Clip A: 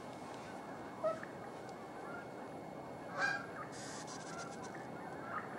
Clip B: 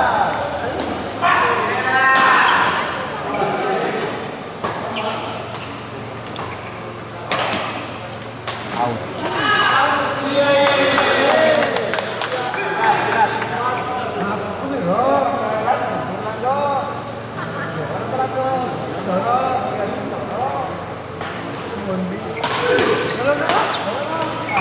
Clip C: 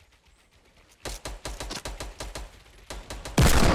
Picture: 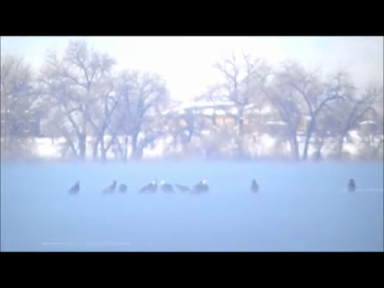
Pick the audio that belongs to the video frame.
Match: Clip A